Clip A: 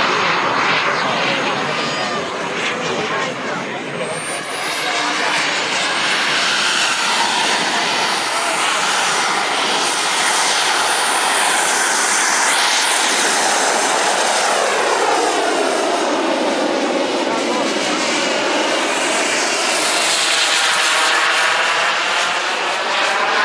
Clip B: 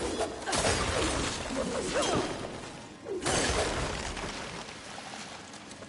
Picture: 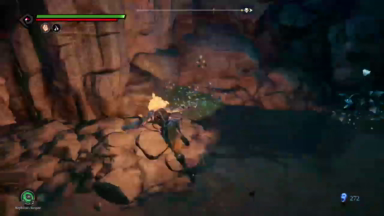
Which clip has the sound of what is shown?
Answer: B